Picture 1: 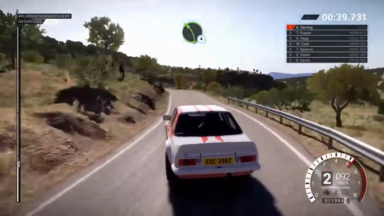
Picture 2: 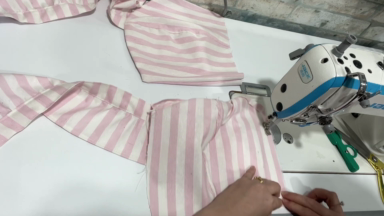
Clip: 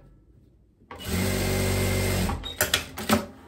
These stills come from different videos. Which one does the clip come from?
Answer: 2